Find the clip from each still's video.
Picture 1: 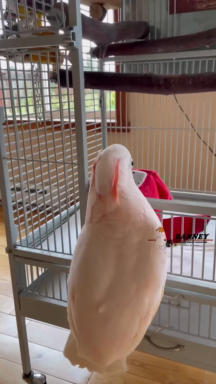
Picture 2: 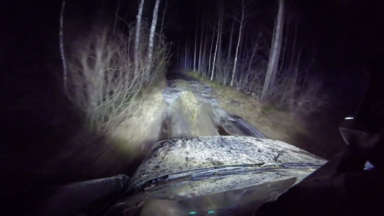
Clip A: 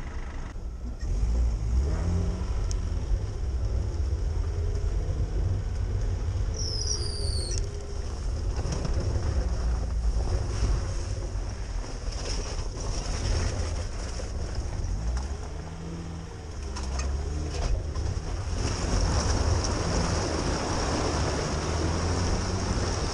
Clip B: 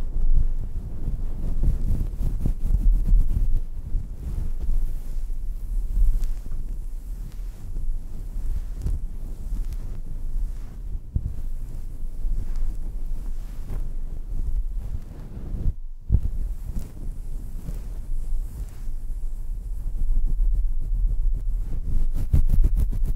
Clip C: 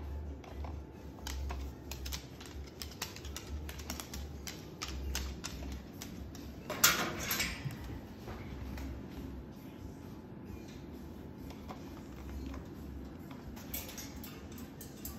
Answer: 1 C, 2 A